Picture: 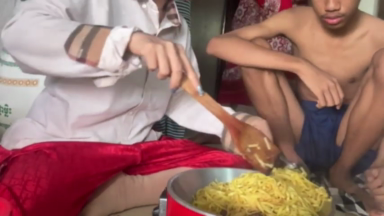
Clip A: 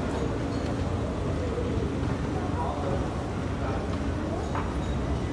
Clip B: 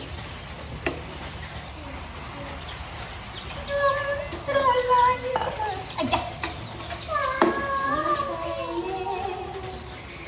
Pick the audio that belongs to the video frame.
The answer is B